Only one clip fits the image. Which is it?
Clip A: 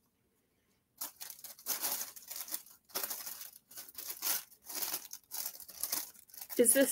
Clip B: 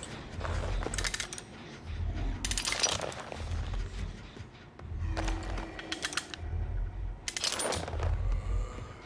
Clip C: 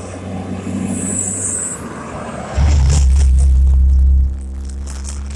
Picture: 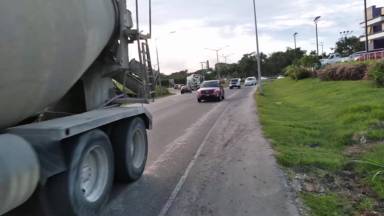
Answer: C